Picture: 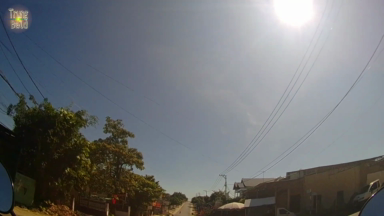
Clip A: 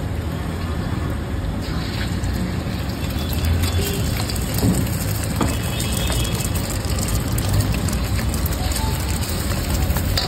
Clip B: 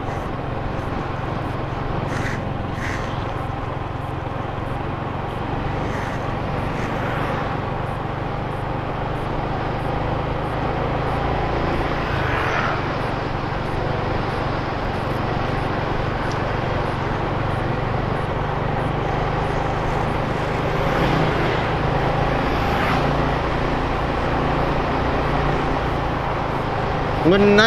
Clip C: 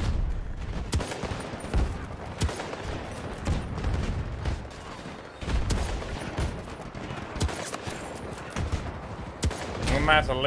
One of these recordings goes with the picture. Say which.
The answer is B